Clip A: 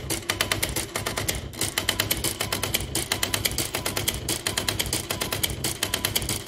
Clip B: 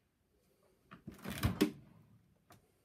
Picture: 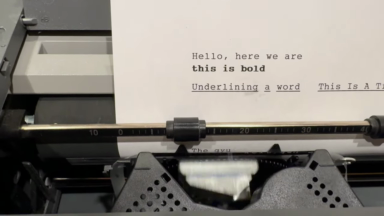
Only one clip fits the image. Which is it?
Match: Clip A